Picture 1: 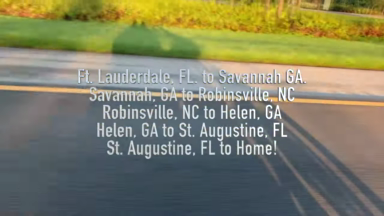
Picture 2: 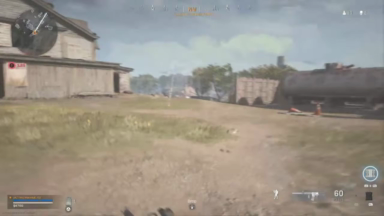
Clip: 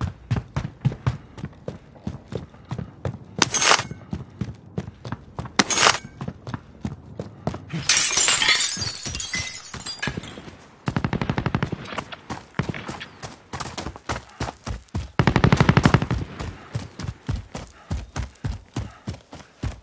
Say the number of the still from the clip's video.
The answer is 2